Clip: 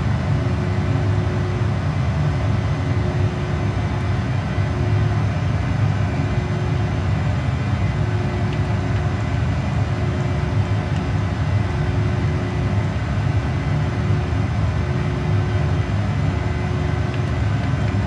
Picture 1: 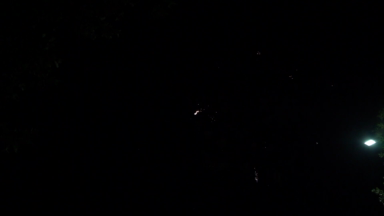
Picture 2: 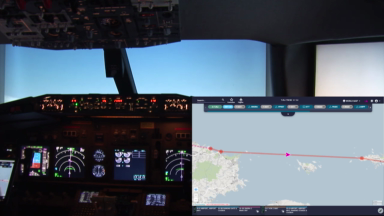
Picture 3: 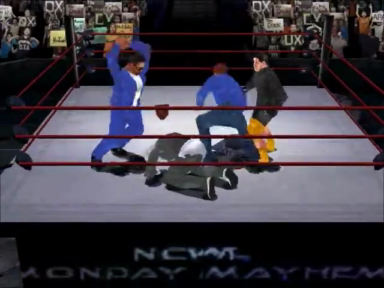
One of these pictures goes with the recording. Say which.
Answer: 2